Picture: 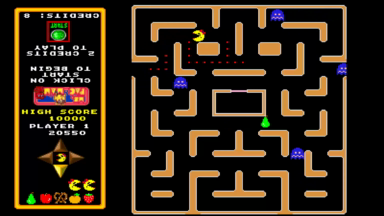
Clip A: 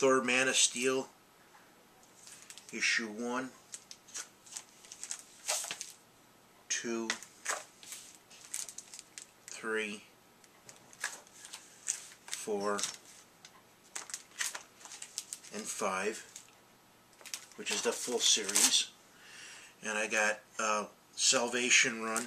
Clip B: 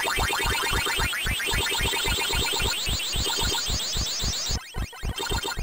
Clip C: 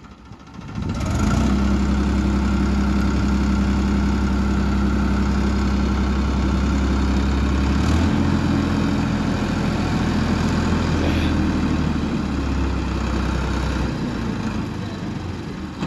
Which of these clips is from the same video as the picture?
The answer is B